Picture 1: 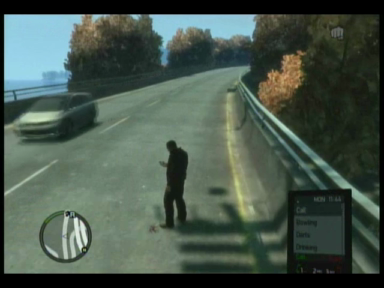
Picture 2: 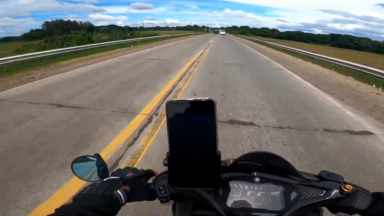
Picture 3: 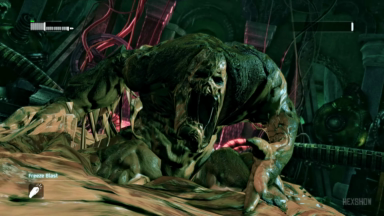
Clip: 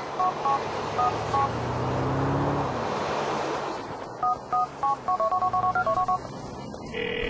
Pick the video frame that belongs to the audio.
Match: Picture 1